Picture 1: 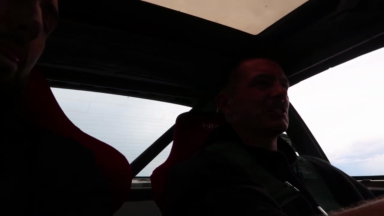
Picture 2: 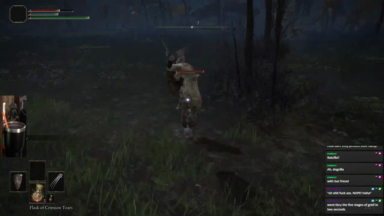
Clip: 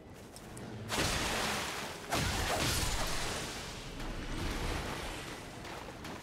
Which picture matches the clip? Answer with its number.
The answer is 2